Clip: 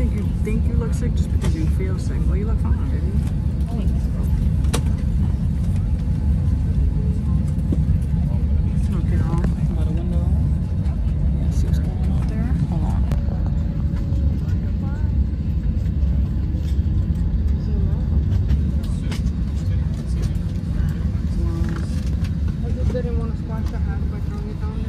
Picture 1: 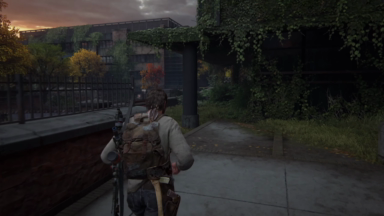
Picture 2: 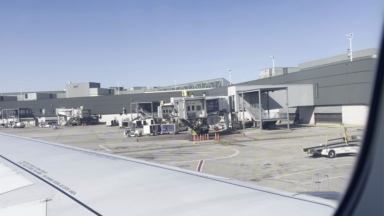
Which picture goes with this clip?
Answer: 2